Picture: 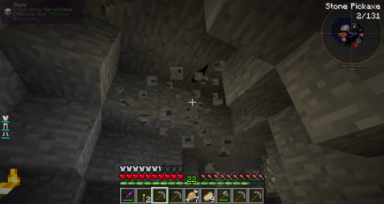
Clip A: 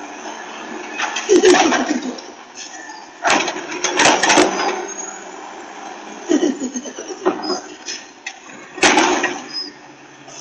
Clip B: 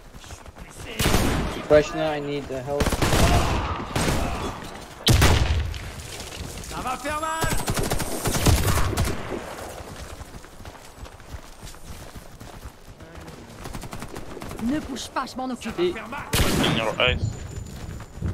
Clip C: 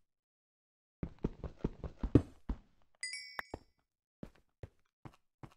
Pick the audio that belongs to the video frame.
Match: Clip C